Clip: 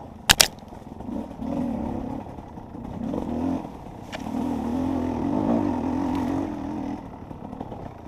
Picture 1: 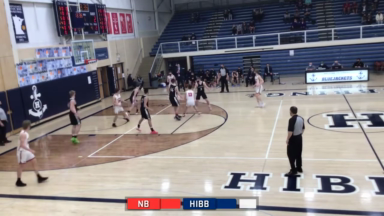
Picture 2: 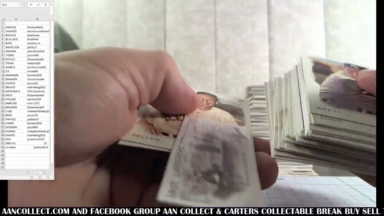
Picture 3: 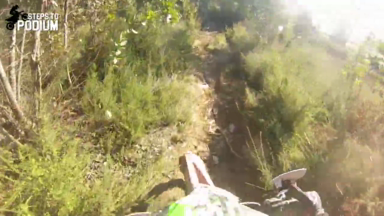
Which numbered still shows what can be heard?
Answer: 3